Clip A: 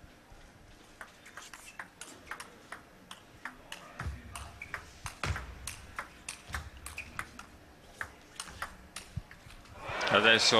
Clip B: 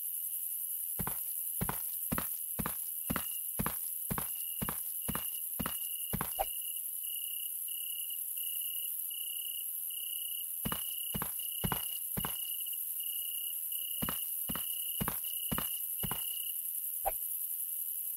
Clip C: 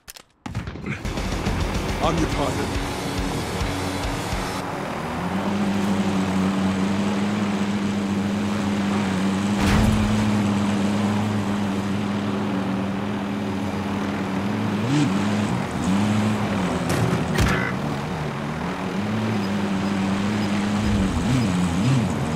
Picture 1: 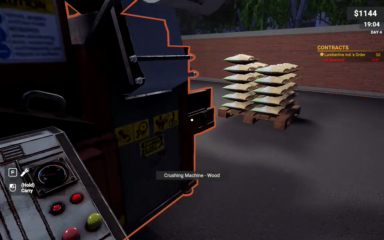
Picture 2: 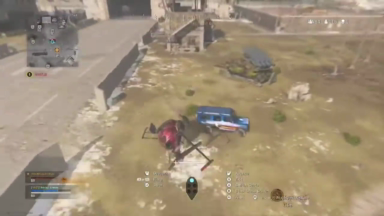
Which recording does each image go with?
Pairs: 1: B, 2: C